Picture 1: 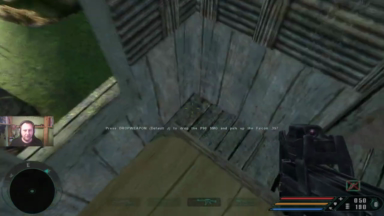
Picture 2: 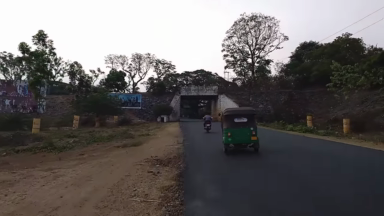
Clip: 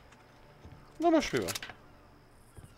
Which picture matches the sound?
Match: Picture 1